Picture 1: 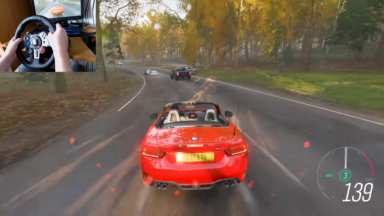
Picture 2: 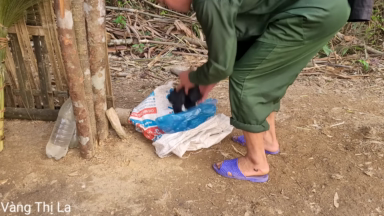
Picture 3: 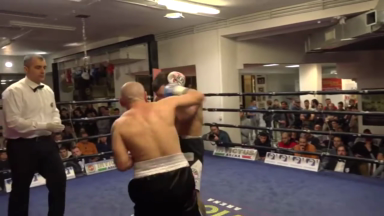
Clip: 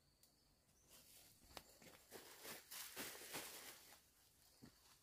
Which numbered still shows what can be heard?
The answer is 2